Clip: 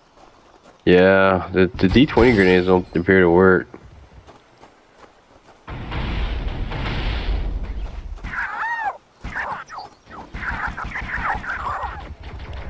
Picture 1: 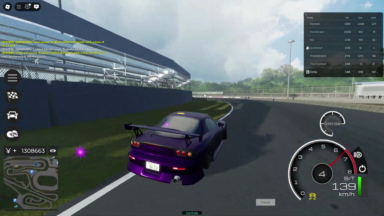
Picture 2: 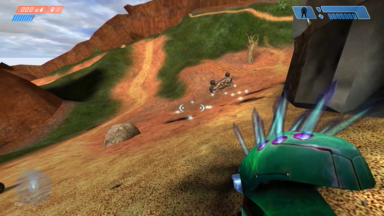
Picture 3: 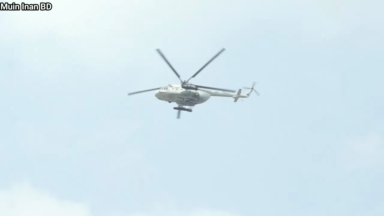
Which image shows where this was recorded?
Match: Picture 2